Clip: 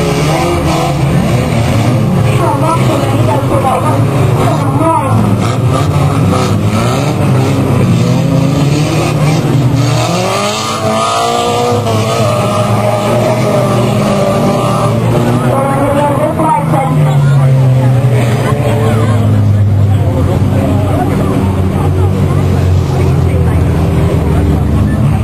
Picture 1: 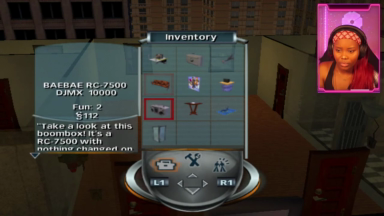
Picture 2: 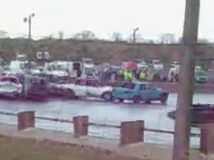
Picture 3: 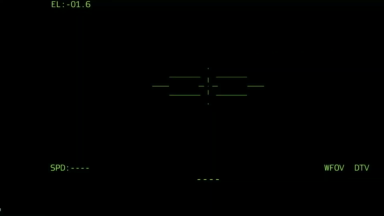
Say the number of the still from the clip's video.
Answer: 2